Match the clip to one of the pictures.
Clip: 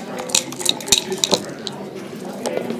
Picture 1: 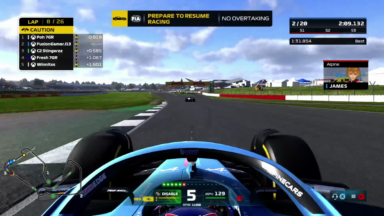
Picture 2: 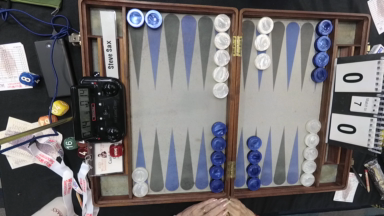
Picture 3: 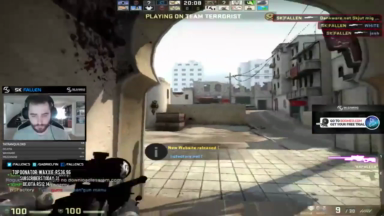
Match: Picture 2